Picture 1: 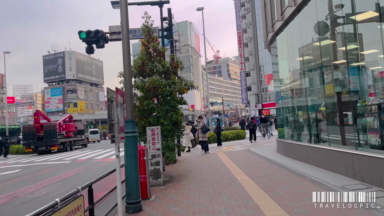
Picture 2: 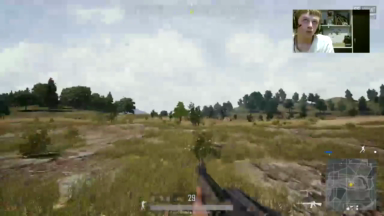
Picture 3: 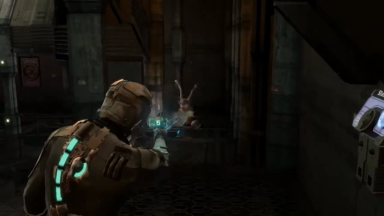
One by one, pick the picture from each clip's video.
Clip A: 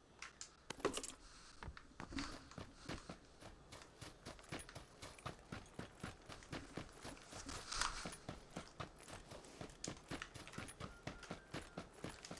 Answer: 2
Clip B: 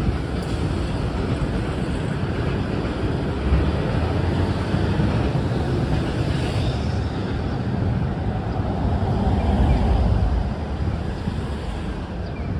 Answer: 1